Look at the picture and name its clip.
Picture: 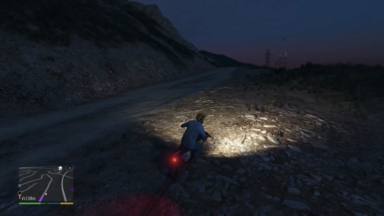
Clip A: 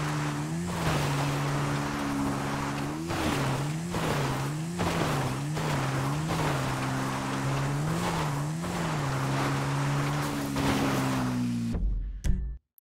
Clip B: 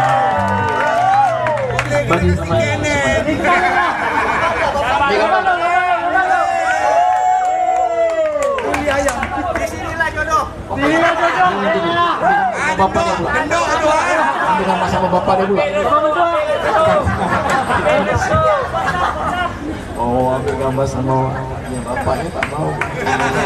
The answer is A